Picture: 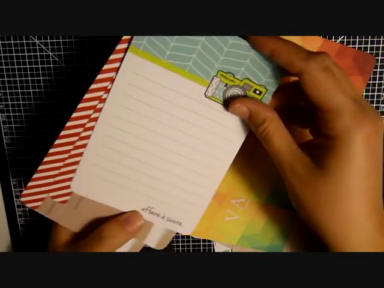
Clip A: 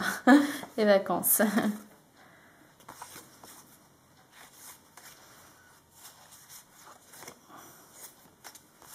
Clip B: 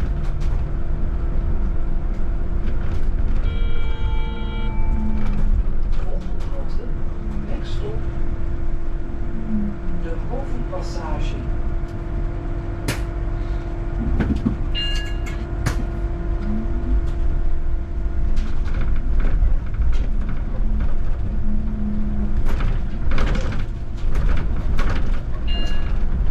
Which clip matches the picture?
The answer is A